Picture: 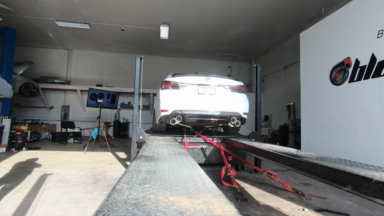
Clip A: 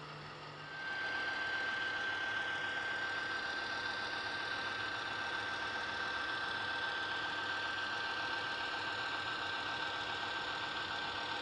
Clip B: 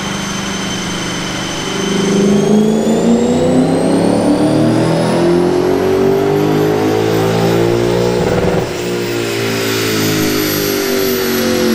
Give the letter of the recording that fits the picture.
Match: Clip B